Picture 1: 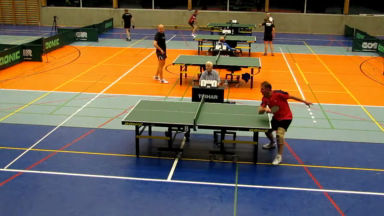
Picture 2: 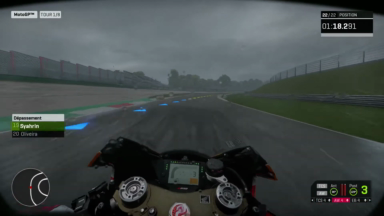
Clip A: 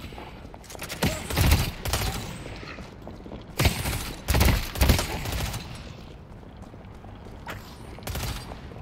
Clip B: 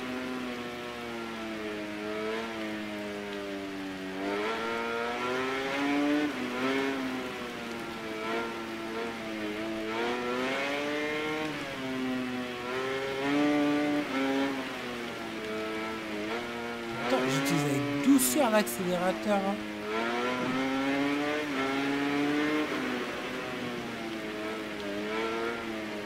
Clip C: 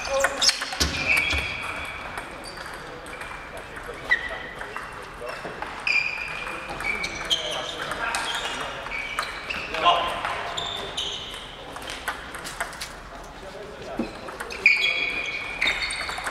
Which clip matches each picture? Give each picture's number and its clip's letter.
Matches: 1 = C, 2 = B